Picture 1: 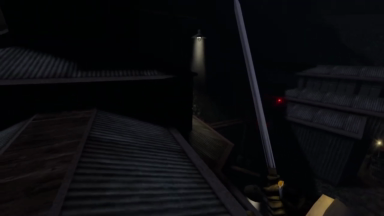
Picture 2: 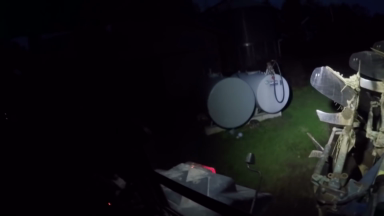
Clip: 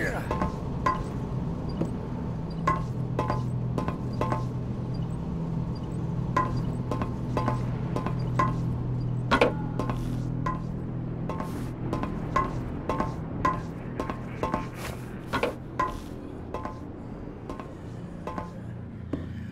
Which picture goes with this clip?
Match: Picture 1